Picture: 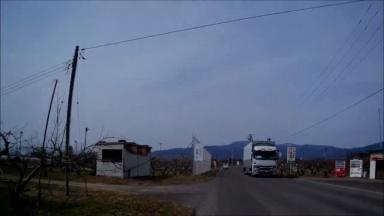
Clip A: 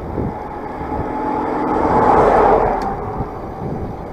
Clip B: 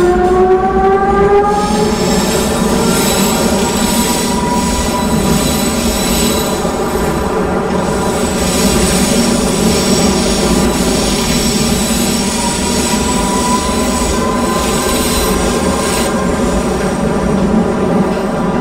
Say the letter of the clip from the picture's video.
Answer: A